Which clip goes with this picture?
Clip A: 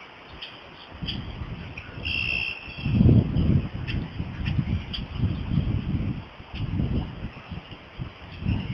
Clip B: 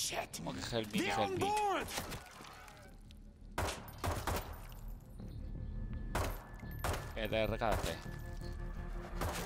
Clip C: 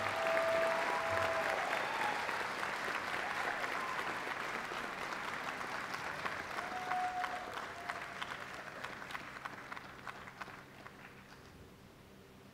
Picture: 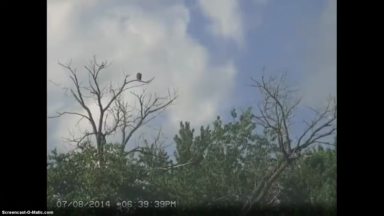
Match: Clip A